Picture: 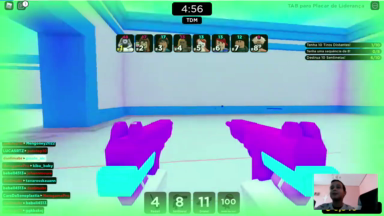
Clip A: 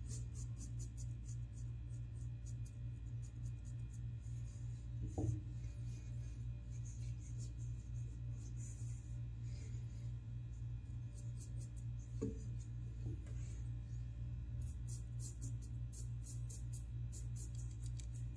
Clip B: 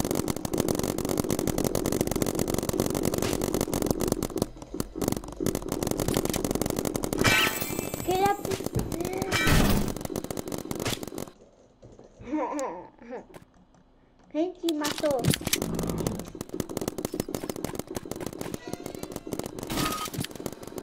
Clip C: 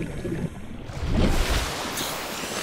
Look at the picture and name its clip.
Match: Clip B